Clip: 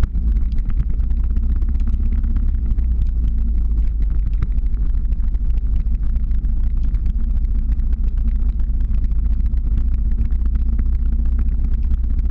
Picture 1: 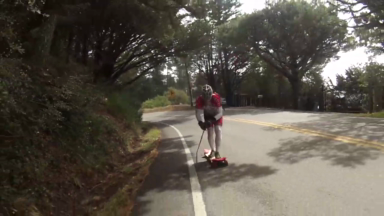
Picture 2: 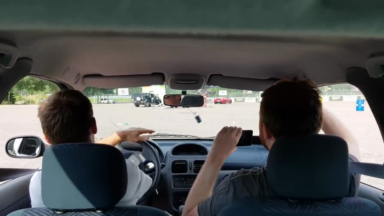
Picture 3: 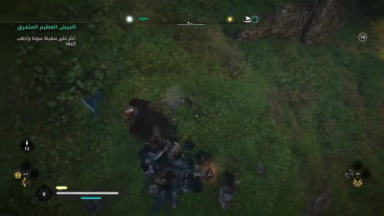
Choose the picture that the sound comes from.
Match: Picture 1